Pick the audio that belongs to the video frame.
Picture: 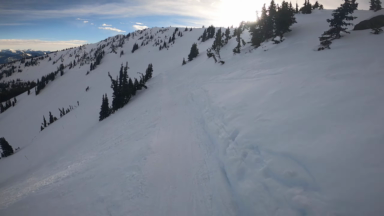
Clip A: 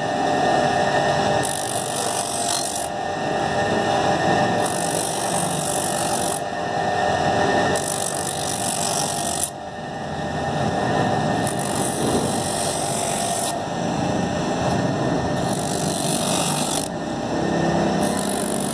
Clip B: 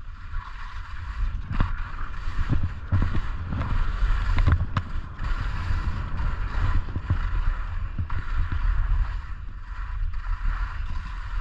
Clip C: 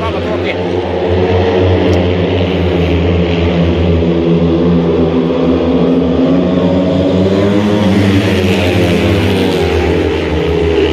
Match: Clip B